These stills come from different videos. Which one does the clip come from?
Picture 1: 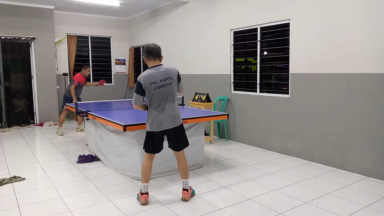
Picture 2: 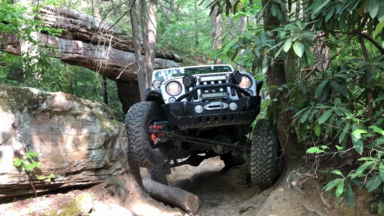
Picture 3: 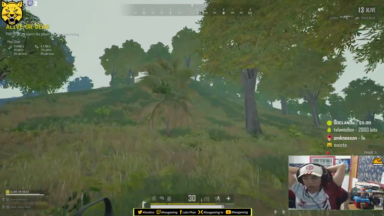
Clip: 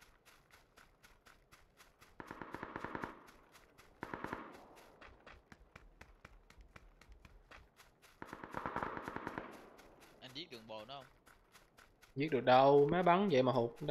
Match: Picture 3